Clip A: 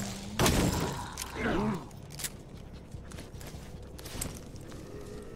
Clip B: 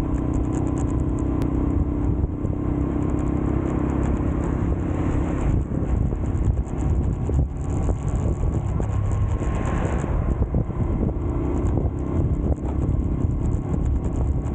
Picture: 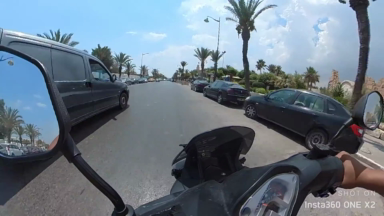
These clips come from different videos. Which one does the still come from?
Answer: B